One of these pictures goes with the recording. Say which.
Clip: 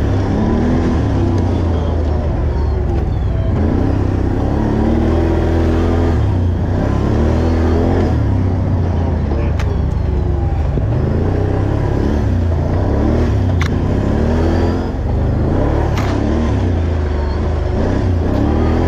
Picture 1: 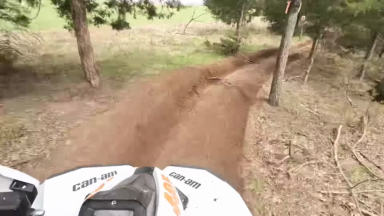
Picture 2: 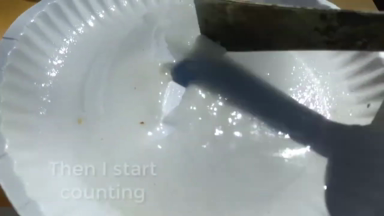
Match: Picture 1